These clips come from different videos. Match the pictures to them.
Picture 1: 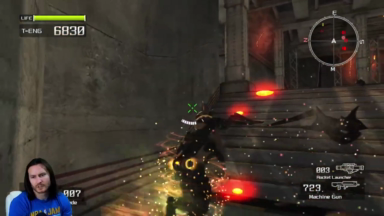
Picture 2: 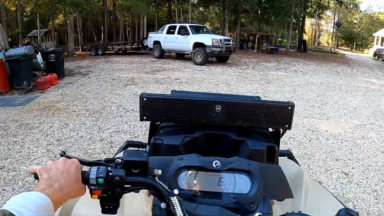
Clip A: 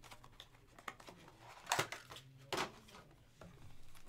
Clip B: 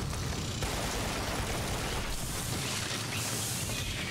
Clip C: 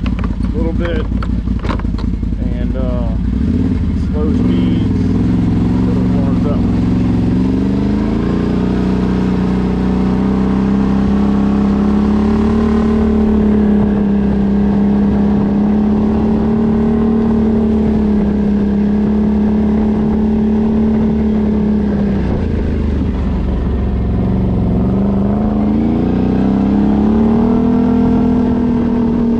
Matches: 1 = B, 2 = C